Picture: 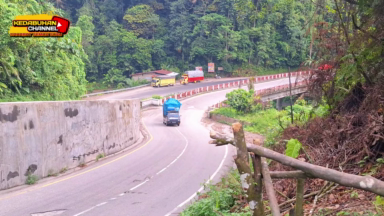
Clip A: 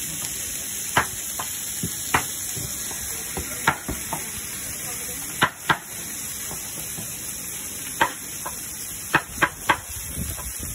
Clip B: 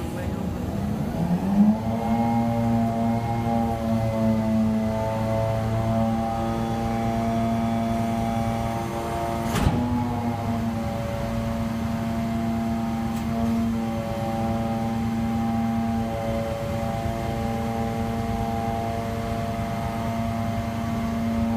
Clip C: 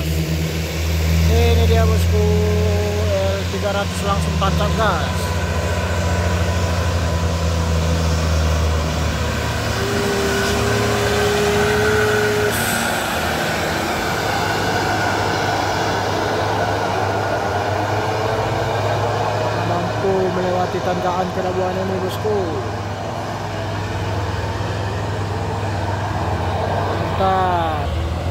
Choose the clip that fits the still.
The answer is C